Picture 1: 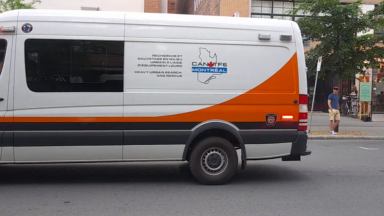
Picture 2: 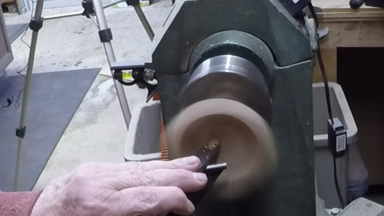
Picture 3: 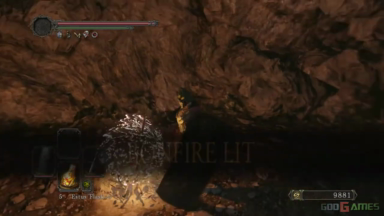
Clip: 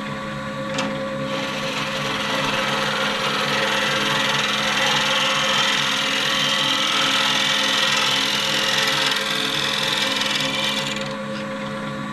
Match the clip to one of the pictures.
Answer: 2